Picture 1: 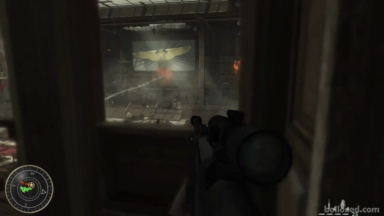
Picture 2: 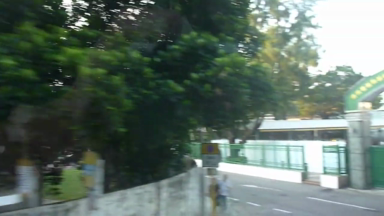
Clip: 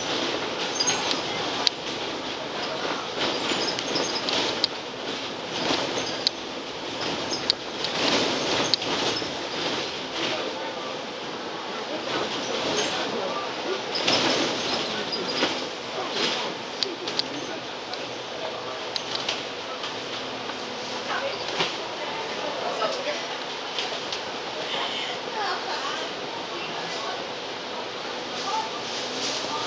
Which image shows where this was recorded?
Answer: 2